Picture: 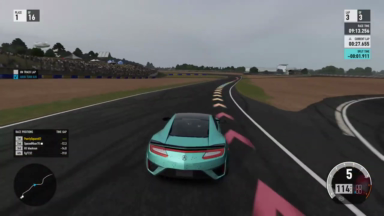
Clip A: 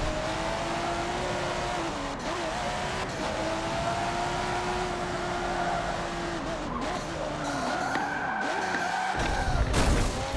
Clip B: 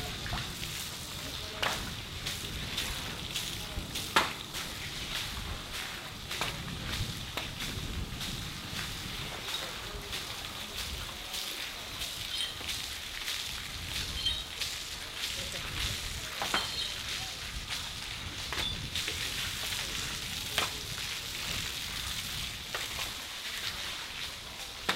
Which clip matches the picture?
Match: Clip A